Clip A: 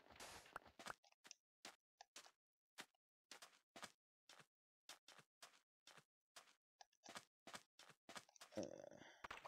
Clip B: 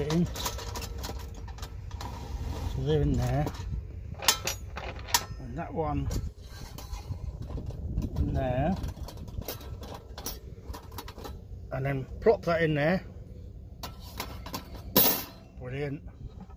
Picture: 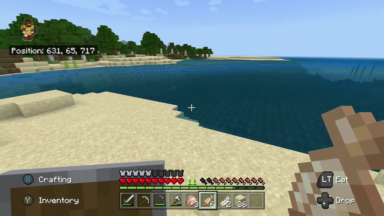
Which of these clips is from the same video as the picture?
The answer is A